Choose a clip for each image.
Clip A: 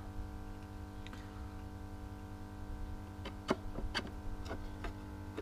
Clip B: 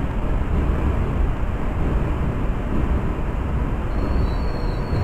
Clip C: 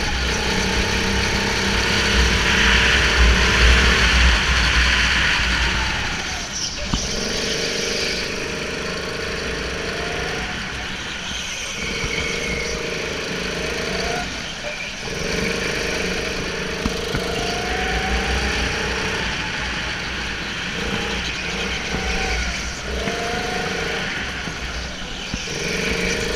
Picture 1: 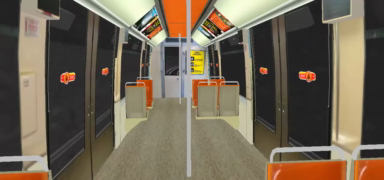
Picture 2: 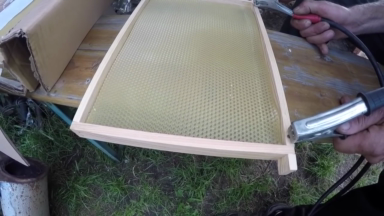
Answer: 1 B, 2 A